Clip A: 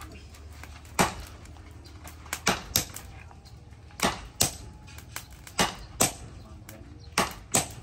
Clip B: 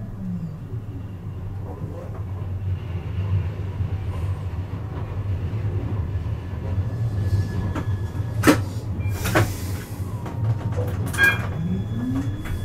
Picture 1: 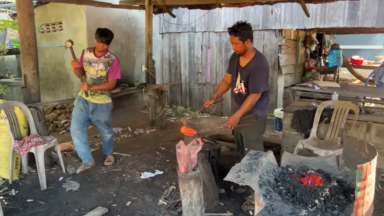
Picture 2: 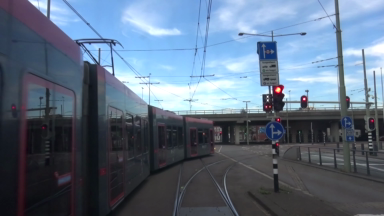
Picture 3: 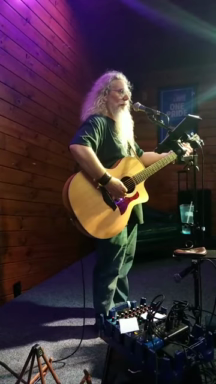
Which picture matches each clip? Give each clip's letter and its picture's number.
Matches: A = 1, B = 2